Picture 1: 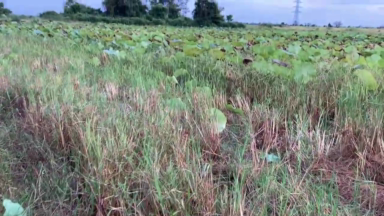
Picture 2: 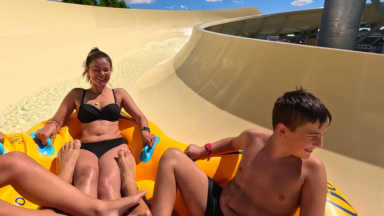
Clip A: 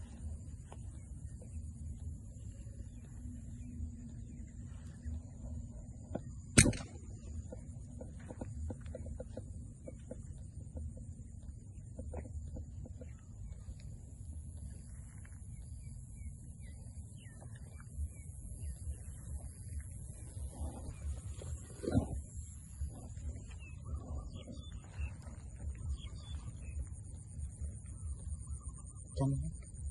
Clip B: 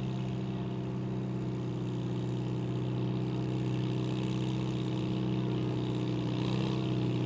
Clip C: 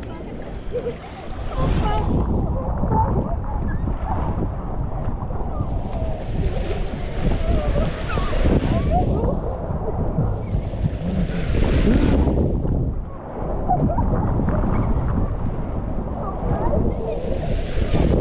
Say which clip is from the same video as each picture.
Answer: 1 A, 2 C